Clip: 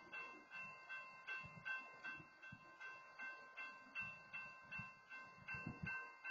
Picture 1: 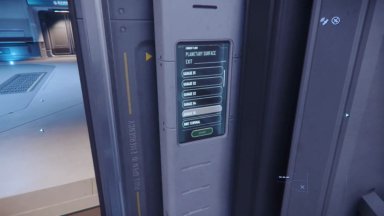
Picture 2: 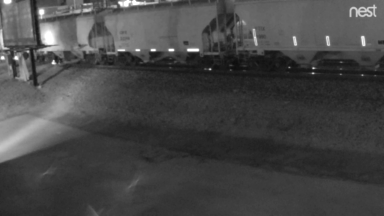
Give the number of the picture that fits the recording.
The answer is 2